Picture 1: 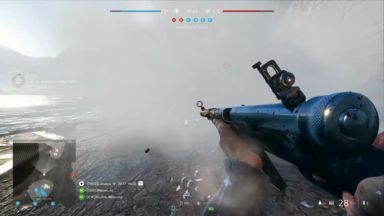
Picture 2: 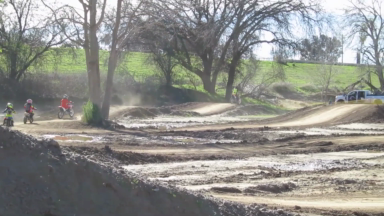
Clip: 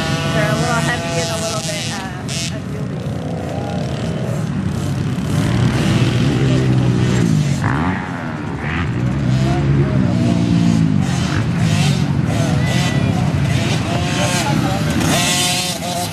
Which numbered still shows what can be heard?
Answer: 2